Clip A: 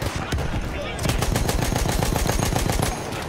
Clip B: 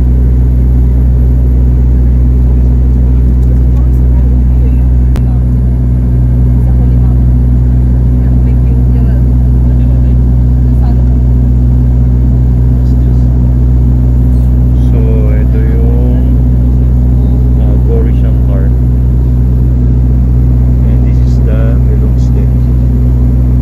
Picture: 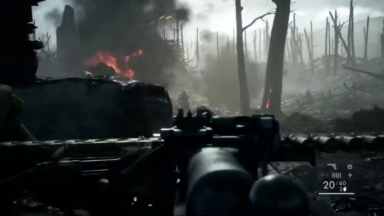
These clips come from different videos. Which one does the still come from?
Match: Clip A